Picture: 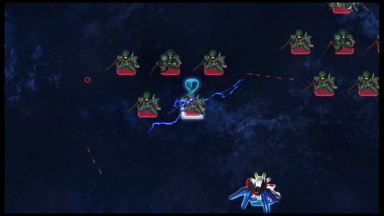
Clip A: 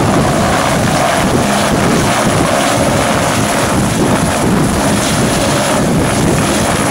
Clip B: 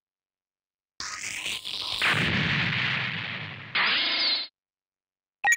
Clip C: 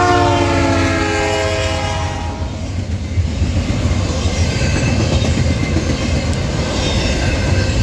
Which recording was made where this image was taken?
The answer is B